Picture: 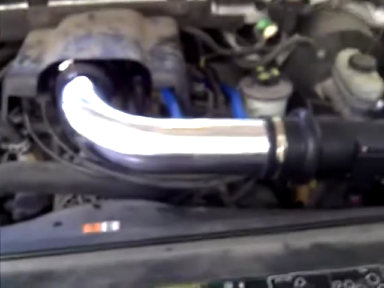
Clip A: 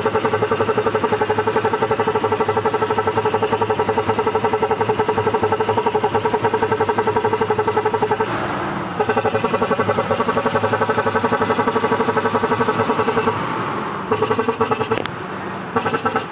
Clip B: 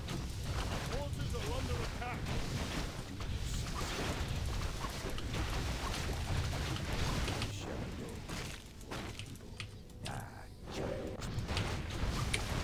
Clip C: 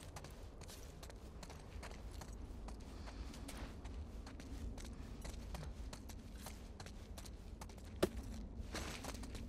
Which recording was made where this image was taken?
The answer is A